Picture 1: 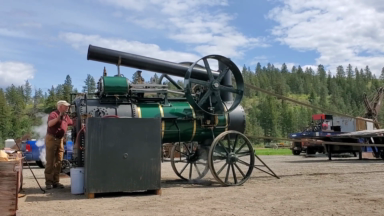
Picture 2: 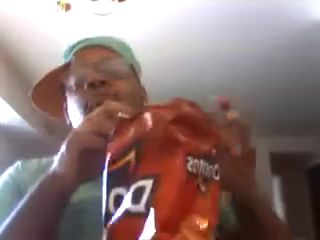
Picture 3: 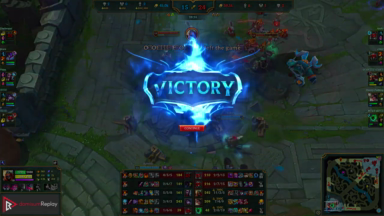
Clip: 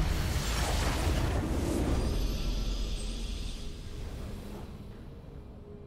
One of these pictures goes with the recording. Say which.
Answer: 3